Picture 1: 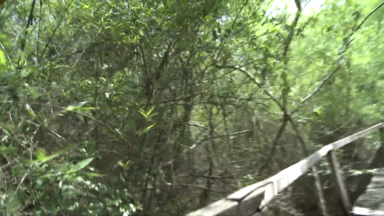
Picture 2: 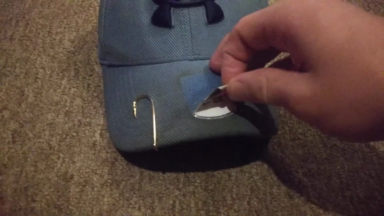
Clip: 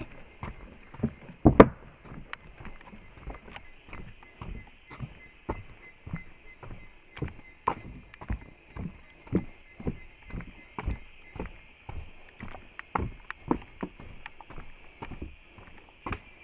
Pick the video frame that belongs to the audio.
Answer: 1